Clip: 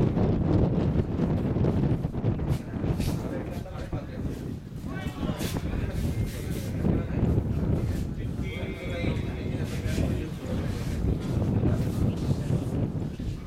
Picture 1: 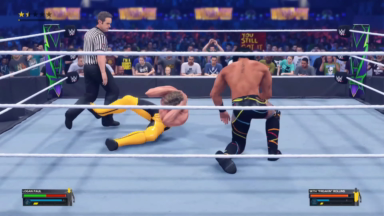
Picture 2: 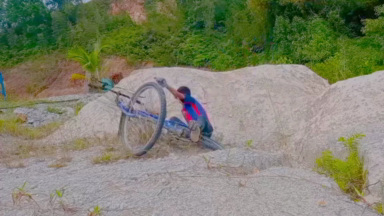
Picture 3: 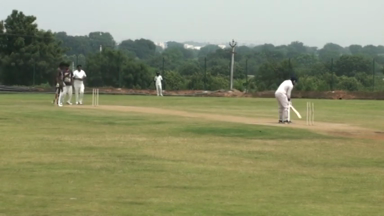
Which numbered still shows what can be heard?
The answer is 3